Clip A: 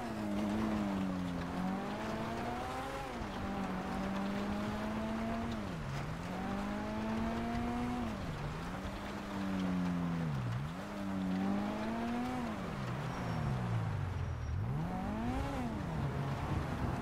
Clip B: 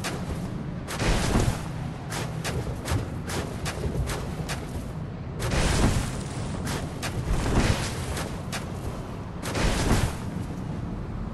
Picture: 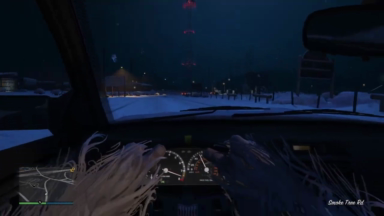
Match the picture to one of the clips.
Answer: A